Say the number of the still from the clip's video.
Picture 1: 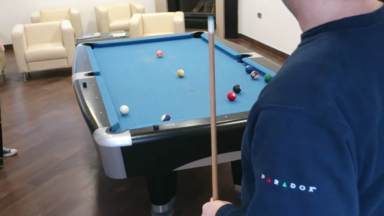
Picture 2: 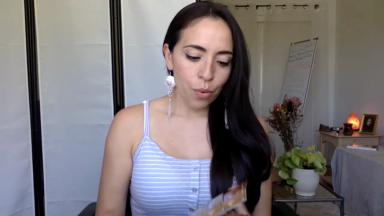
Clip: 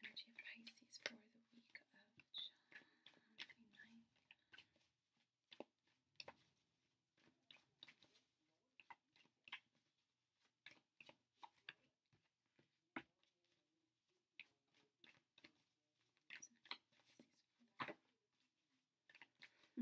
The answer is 2